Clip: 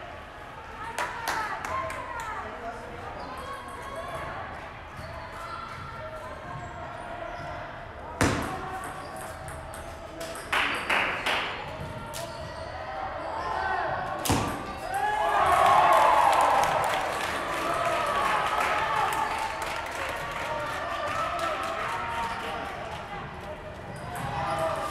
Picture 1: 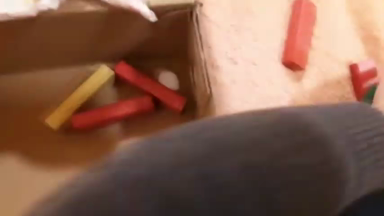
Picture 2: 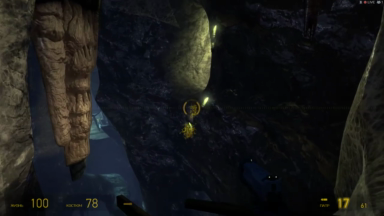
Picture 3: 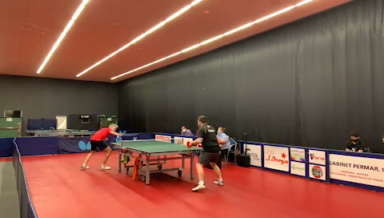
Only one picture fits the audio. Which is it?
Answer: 3